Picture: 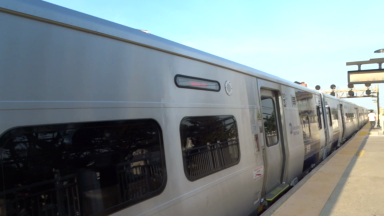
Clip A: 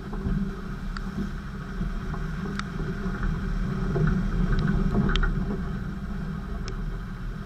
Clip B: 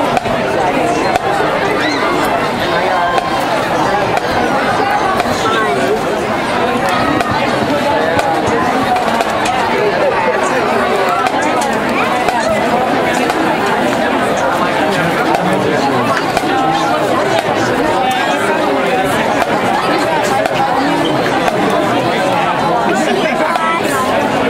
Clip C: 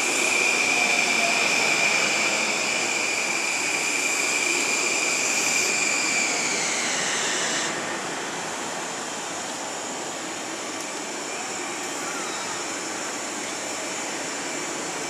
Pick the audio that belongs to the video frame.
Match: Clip C